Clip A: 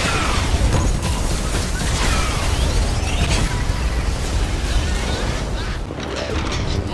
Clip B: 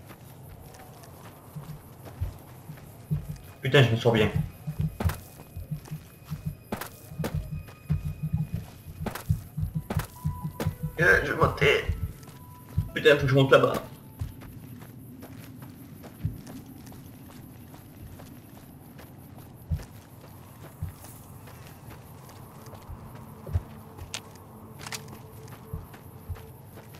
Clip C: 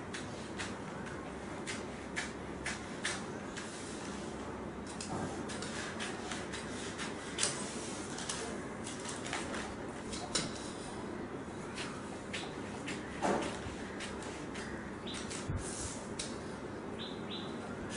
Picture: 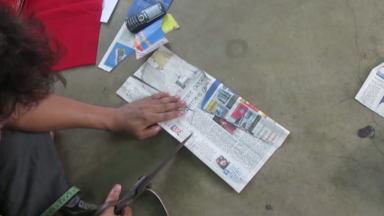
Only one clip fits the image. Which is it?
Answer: C